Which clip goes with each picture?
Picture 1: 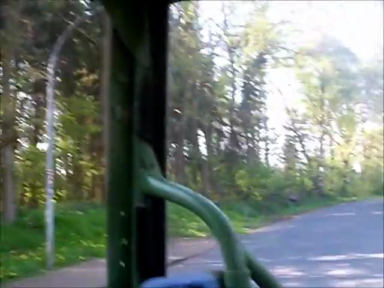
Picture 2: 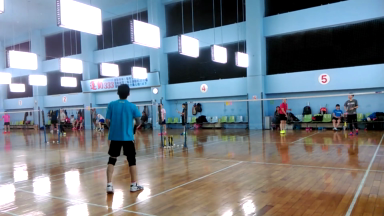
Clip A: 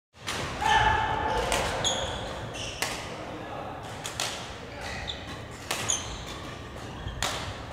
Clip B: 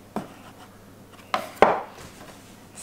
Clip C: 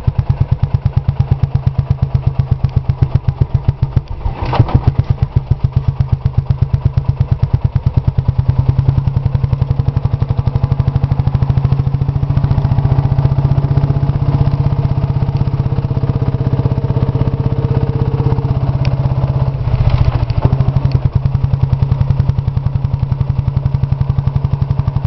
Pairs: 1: C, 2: A